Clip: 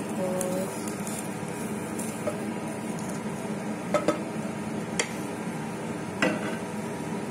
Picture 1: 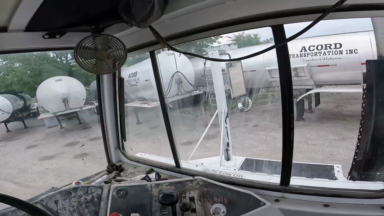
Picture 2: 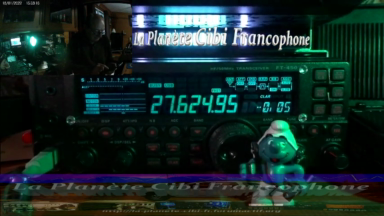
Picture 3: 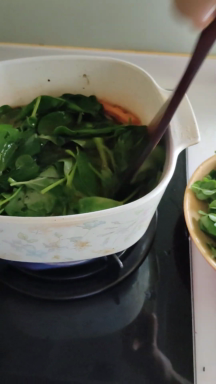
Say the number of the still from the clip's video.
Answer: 3